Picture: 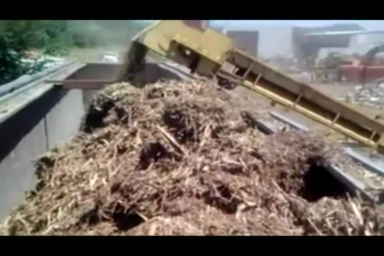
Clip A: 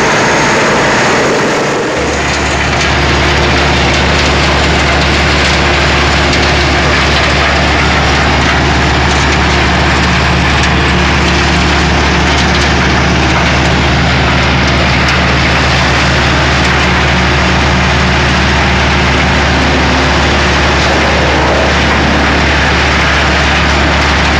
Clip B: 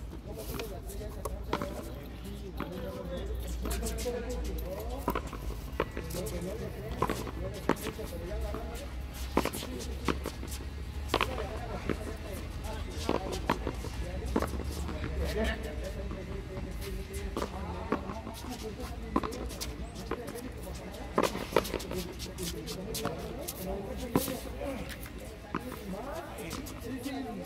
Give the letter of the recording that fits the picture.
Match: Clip A